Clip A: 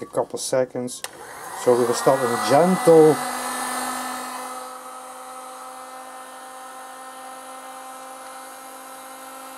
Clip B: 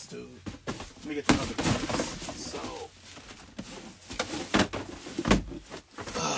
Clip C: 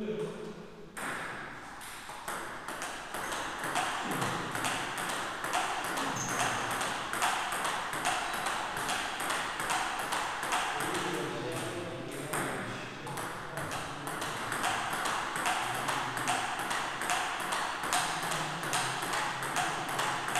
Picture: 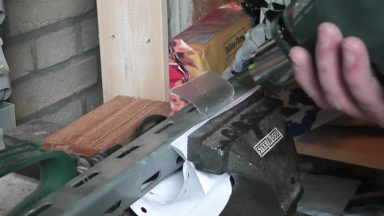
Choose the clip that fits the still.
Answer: A